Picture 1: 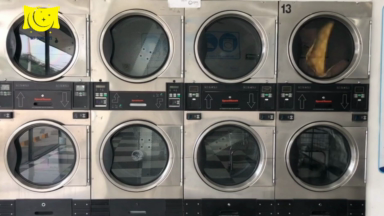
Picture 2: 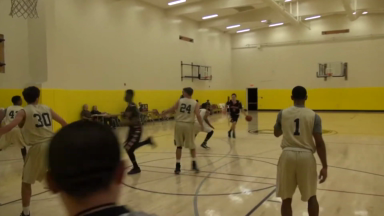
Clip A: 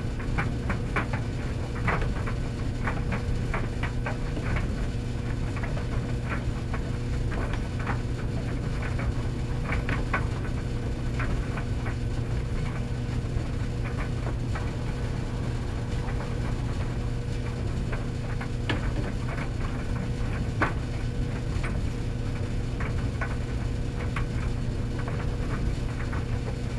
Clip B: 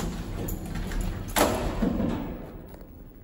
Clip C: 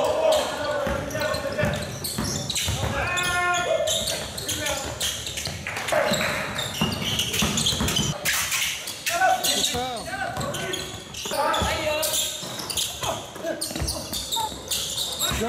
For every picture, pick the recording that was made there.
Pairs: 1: A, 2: C